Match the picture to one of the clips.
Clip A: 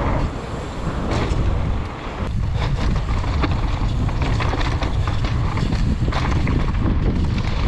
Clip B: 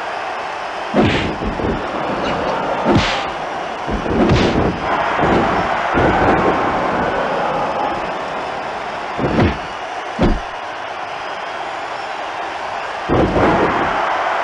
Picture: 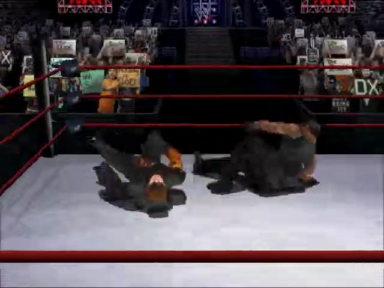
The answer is B